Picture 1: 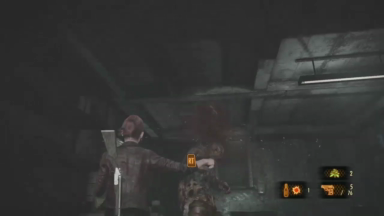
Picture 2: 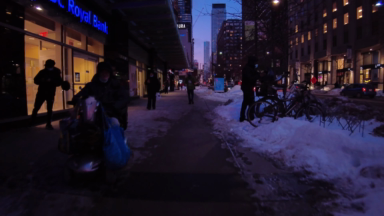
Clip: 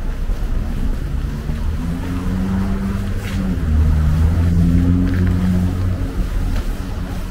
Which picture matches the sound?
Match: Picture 2